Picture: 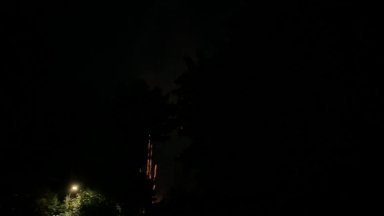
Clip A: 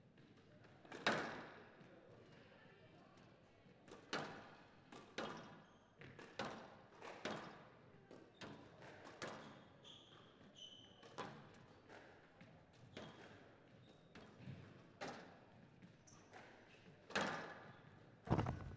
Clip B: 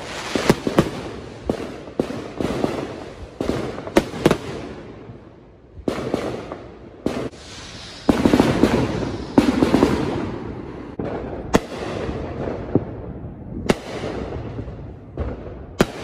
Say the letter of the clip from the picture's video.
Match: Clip B